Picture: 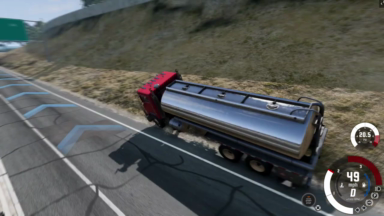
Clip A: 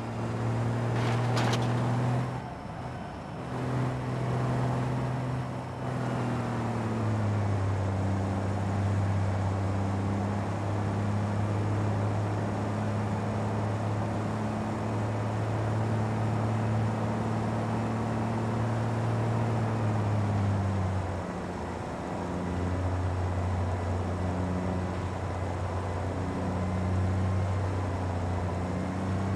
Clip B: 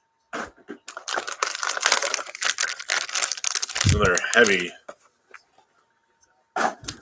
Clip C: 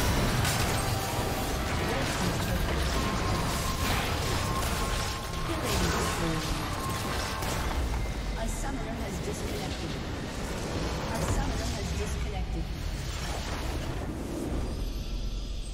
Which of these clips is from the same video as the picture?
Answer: A